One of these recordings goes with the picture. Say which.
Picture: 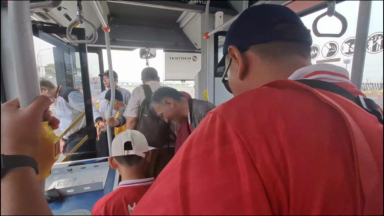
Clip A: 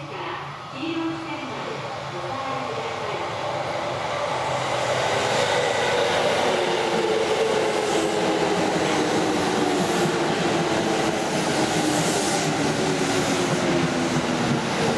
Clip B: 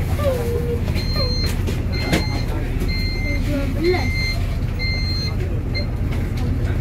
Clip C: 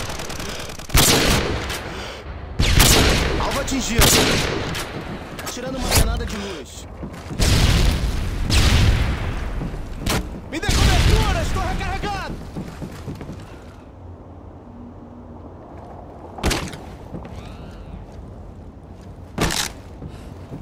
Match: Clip B